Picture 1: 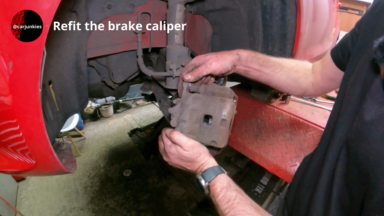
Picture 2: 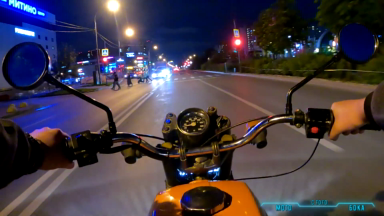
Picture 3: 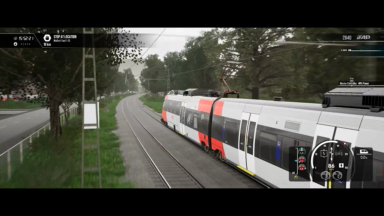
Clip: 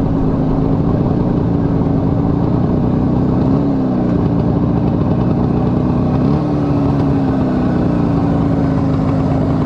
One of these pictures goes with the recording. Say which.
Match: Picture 2